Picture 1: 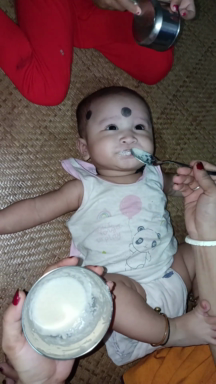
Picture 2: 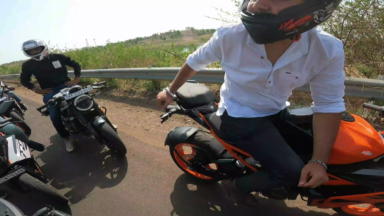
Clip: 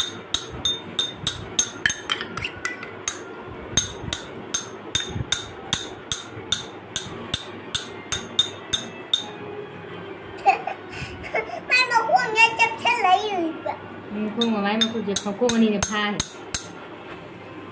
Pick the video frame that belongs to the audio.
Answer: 1